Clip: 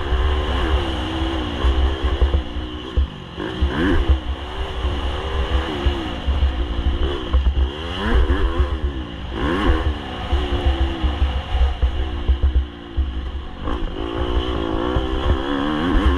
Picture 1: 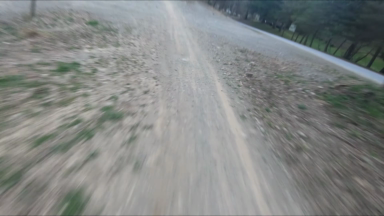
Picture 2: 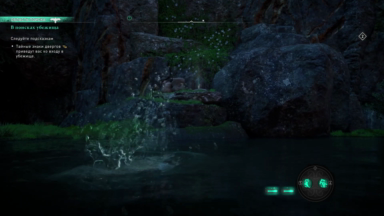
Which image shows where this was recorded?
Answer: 1